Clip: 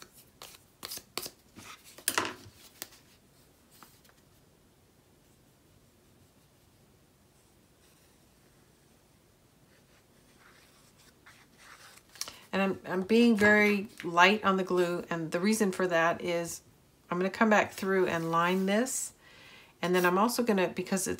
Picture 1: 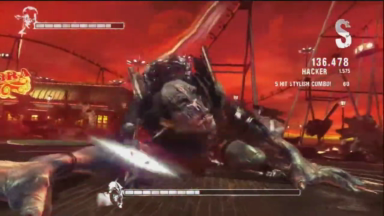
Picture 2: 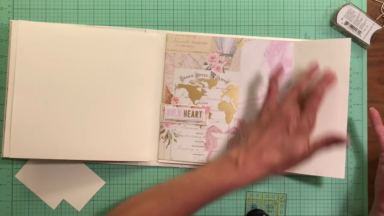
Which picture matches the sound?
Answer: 2